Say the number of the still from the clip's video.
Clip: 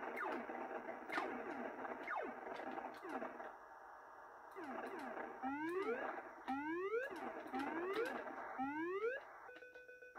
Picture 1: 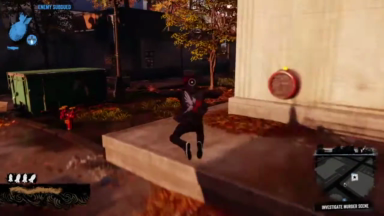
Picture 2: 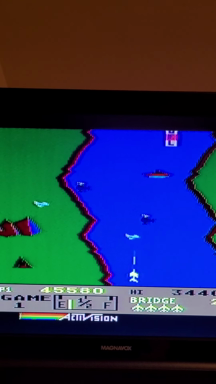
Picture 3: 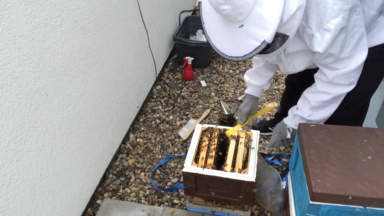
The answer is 2